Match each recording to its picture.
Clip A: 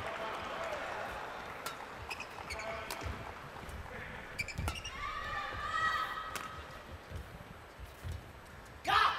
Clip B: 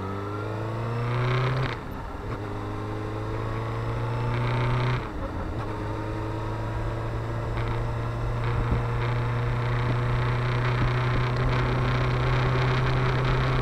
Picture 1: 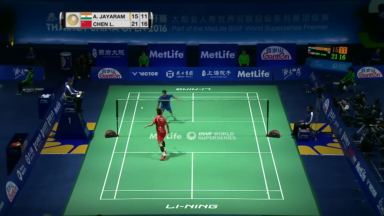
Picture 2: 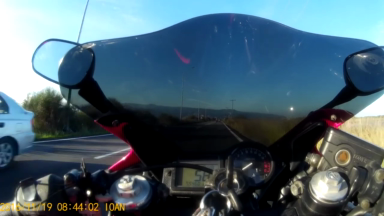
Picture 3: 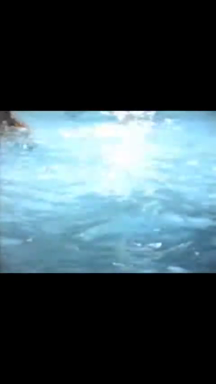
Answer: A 1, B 2